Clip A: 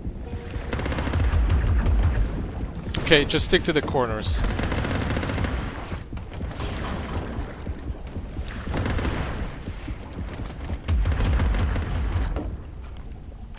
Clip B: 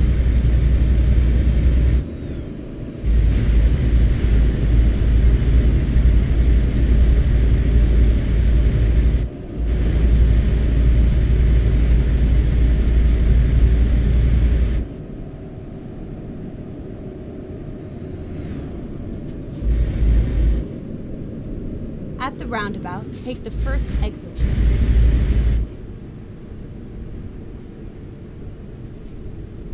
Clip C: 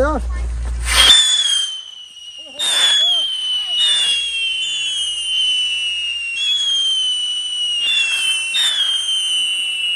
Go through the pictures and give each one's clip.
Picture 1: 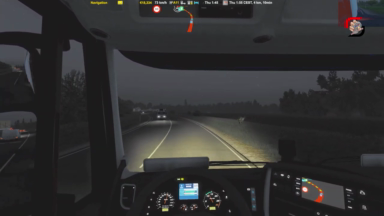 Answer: B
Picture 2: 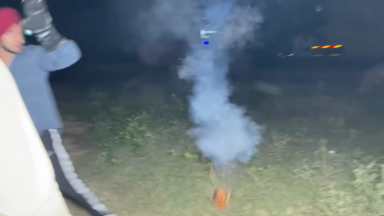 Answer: C